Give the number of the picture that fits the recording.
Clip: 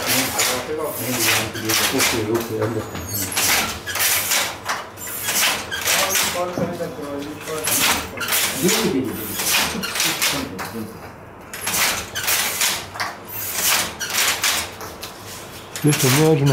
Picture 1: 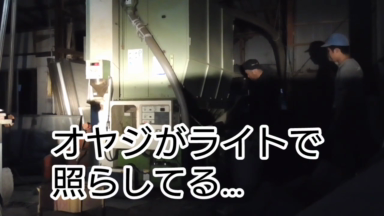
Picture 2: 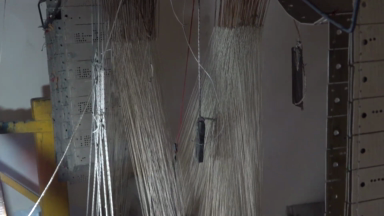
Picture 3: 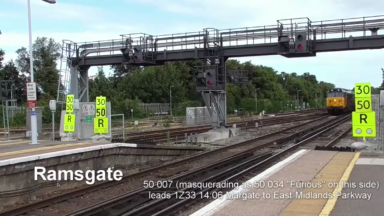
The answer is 2